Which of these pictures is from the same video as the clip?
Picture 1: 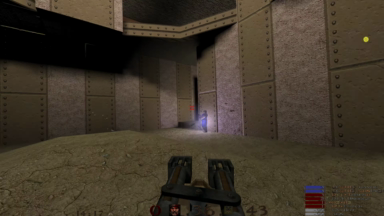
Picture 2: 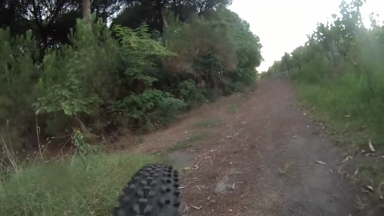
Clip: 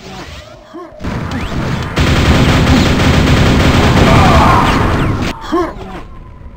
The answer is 1